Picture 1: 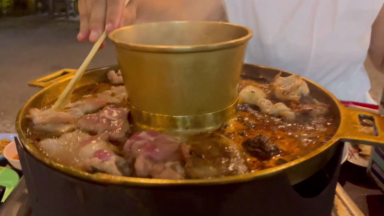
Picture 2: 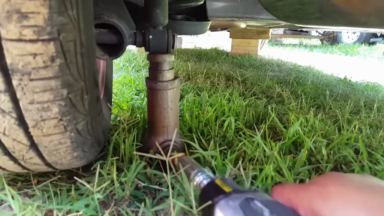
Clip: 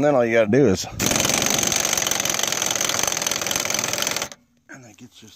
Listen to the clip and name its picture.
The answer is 2